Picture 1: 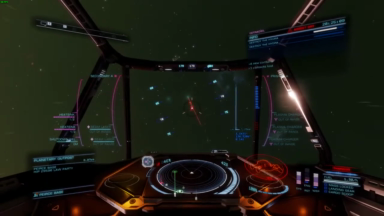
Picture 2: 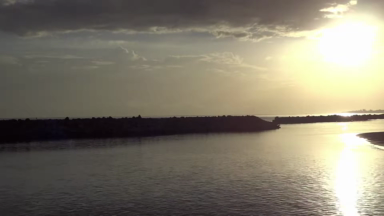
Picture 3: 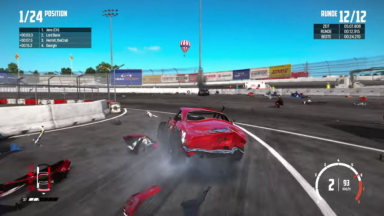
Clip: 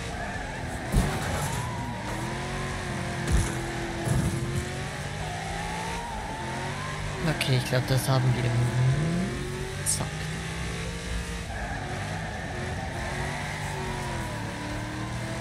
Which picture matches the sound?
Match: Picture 3